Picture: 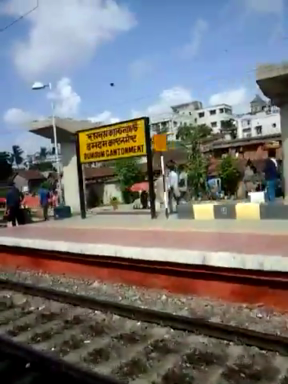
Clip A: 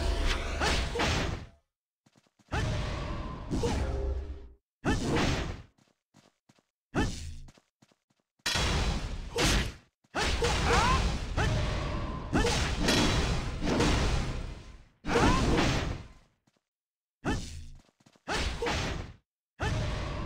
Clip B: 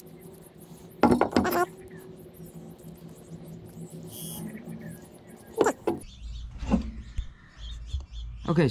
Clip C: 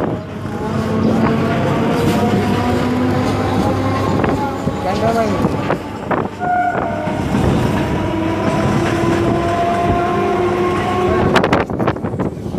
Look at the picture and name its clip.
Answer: C